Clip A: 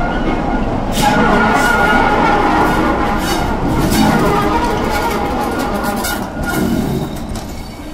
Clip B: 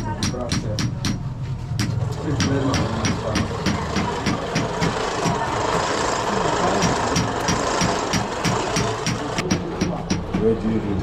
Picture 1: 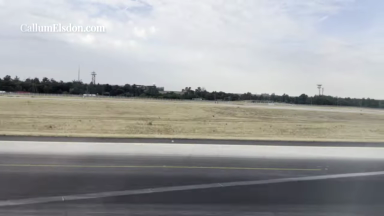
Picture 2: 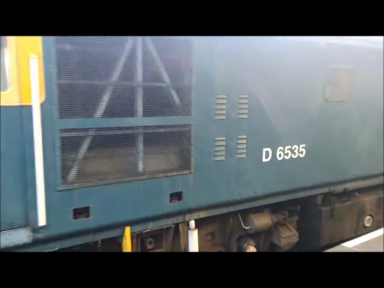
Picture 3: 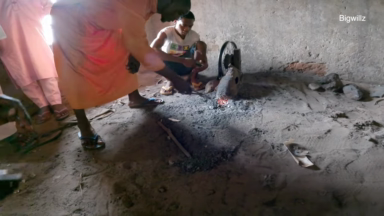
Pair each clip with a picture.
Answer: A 2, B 3